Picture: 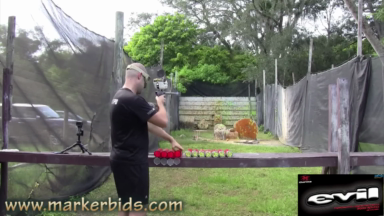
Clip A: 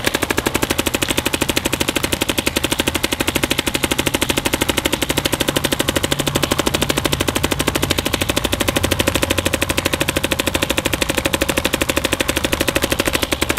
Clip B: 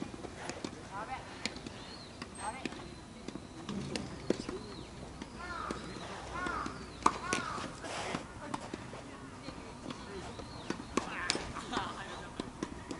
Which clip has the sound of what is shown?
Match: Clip A